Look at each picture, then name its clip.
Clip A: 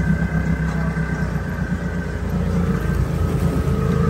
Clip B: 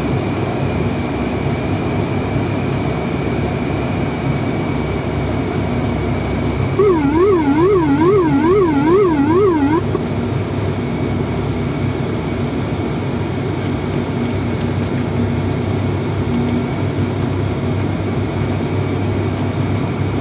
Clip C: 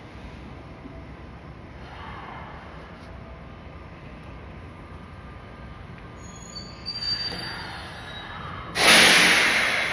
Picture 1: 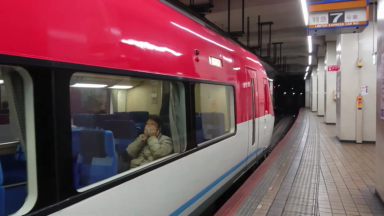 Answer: C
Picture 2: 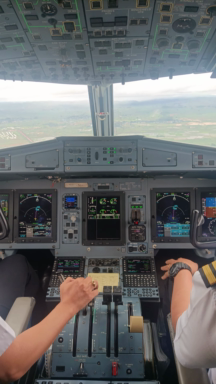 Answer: B